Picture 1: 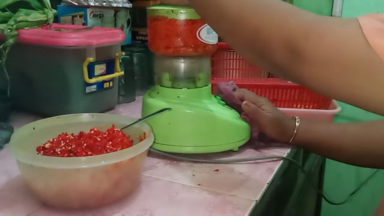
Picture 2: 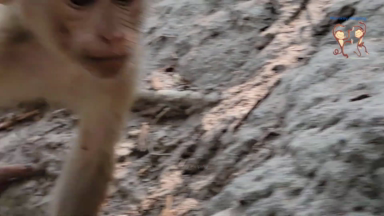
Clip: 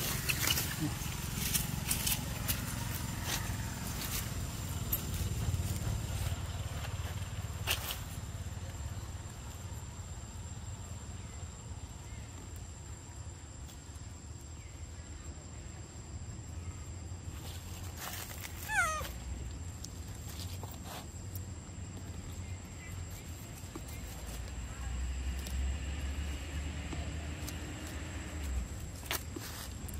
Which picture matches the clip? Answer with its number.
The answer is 2